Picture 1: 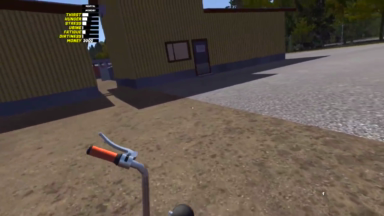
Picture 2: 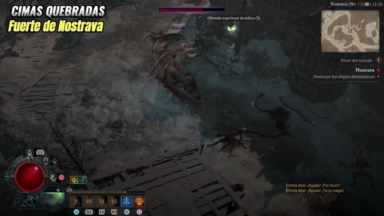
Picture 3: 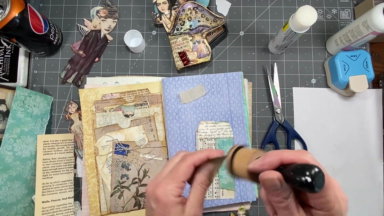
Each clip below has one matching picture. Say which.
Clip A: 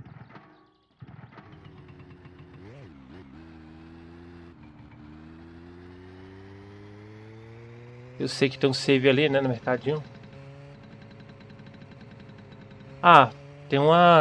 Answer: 1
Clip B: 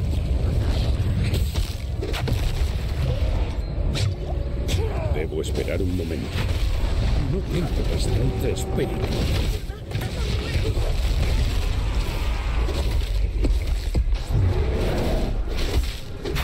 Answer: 2